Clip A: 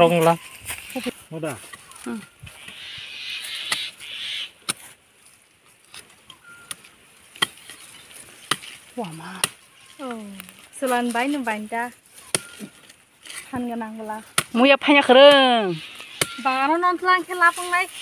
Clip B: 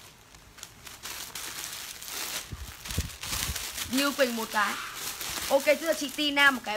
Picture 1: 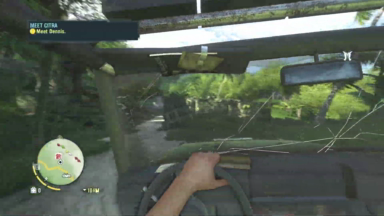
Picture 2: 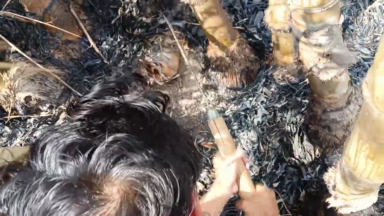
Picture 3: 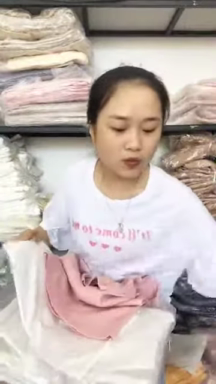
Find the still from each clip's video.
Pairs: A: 2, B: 3